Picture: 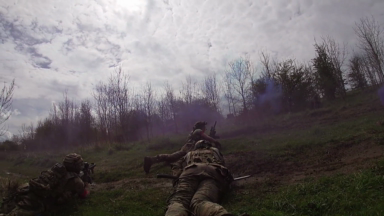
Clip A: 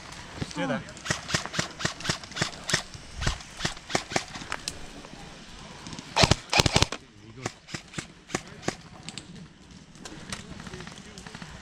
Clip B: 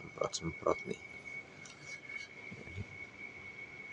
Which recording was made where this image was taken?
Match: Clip A